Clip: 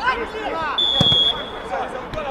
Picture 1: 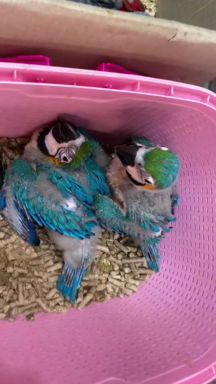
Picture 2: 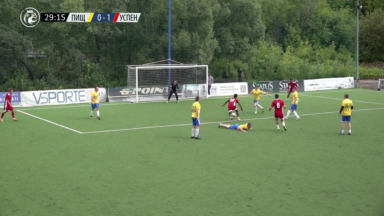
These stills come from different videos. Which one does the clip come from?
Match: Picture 2